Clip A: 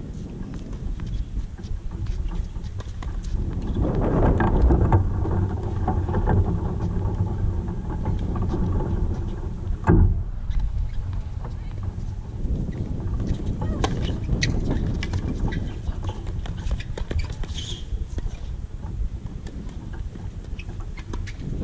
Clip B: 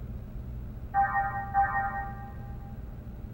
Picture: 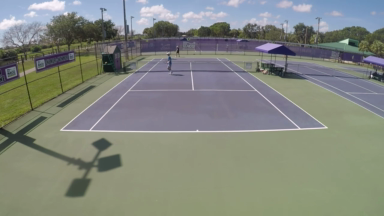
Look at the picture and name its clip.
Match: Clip A